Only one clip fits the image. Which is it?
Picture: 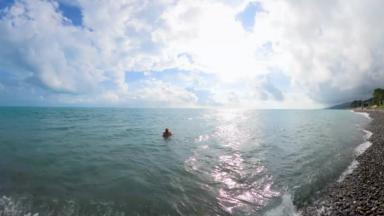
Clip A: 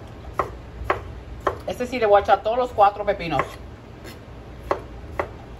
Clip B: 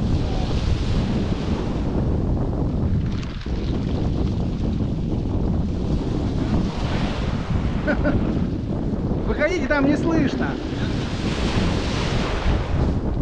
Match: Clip B